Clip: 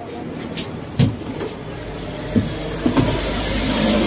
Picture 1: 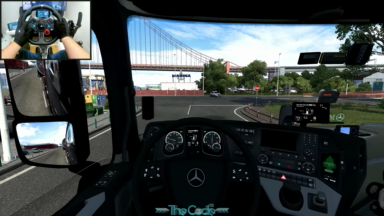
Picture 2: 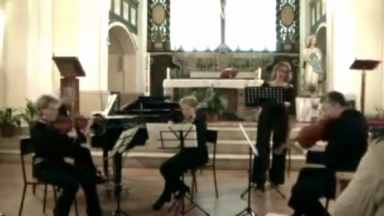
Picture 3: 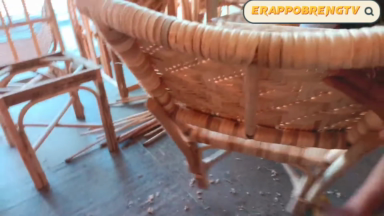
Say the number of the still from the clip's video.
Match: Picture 3